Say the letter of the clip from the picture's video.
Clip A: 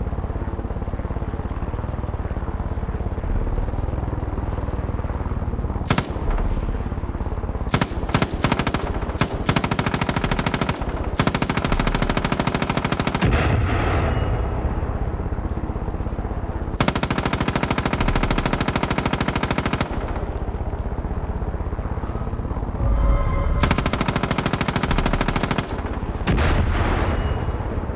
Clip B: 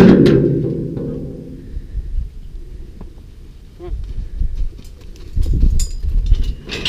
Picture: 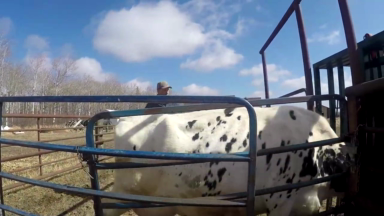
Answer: B